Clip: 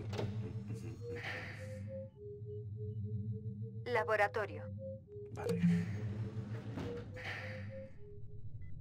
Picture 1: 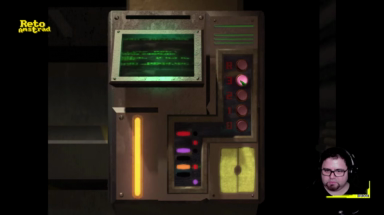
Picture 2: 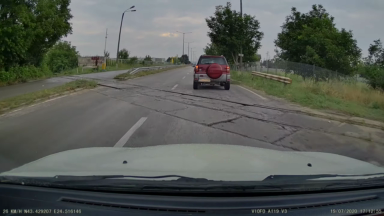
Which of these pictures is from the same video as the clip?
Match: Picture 1